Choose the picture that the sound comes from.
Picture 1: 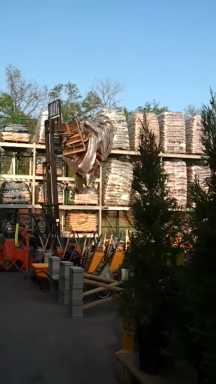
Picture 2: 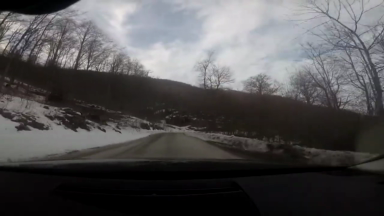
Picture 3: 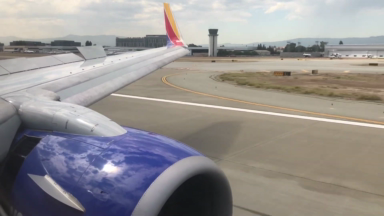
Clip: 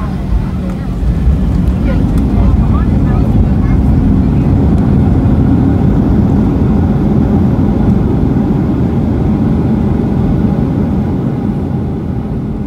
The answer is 3